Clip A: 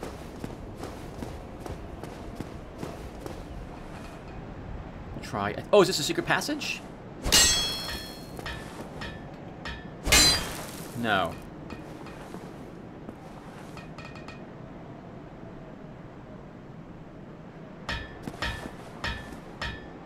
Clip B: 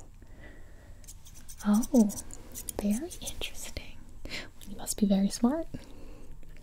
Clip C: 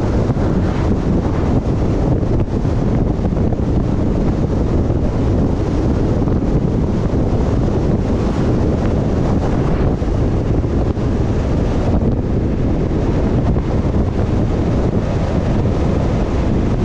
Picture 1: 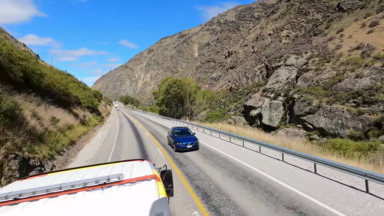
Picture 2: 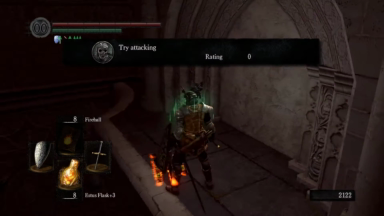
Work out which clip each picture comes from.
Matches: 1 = C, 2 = A